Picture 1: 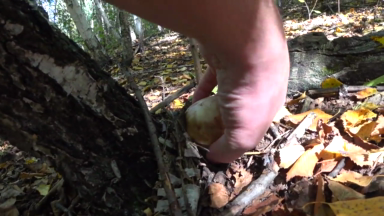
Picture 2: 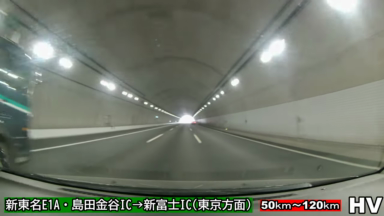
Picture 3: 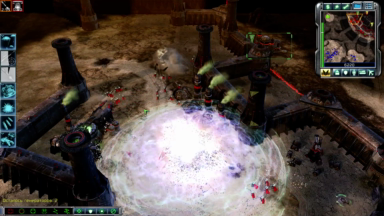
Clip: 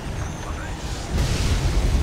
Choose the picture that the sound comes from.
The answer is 3